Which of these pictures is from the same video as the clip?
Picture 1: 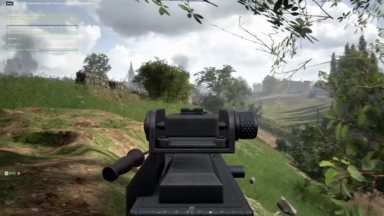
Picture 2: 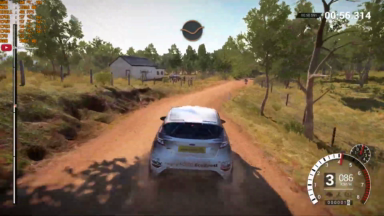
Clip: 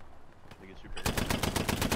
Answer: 1